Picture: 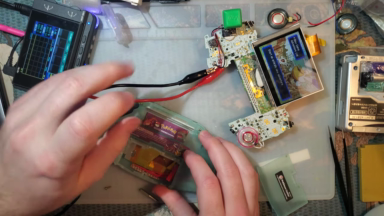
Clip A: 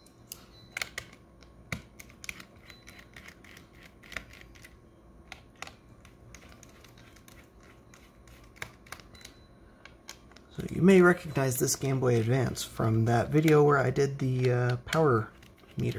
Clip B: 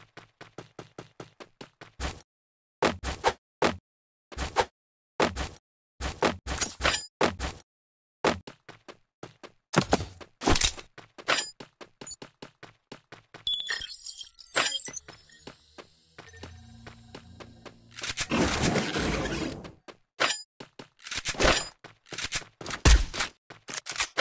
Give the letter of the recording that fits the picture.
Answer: A